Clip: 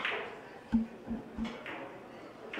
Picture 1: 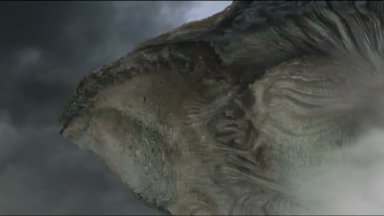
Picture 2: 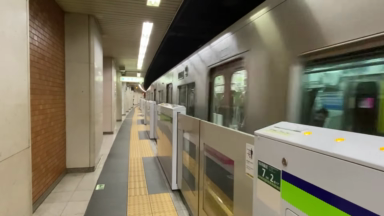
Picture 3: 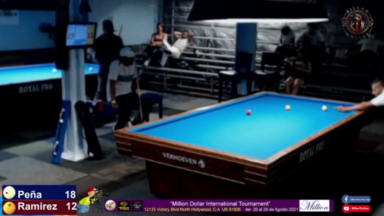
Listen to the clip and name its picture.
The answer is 3